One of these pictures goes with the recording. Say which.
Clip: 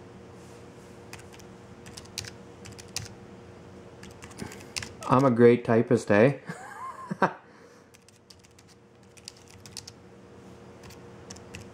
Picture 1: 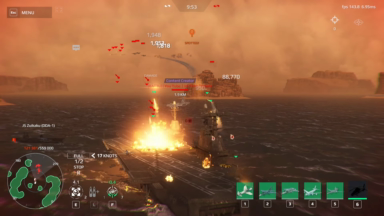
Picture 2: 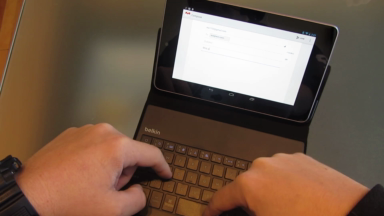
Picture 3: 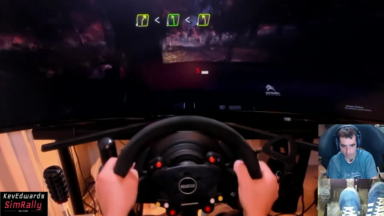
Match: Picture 2